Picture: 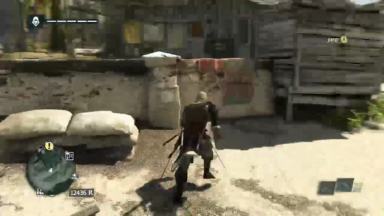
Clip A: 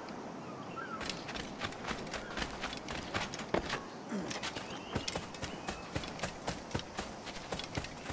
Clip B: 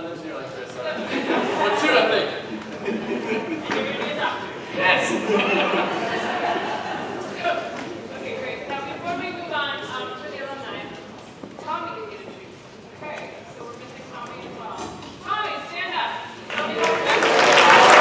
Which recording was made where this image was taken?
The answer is A